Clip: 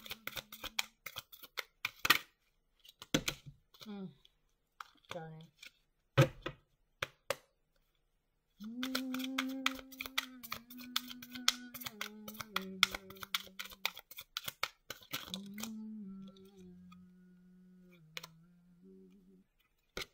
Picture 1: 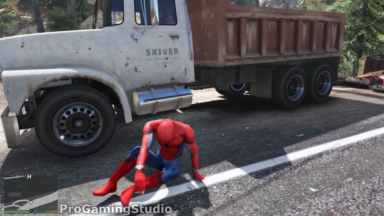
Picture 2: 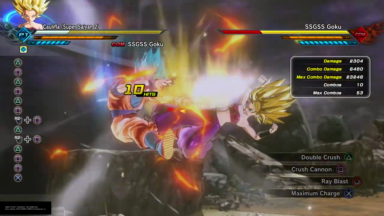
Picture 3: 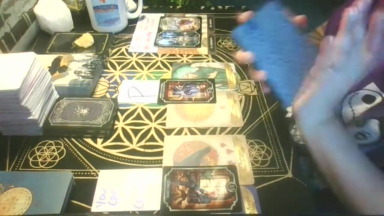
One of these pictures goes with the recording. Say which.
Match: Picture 3